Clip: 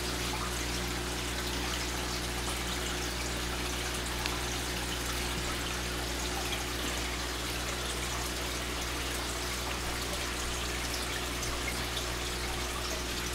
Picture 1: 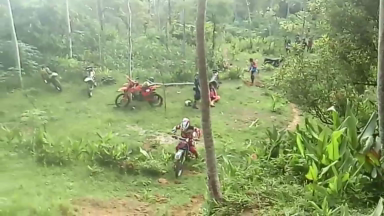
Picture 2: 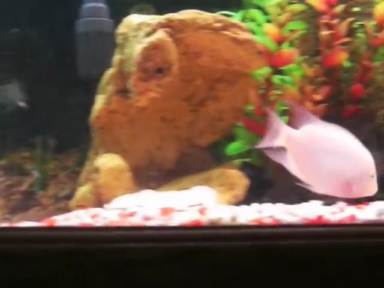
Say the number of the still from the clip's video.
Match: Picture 2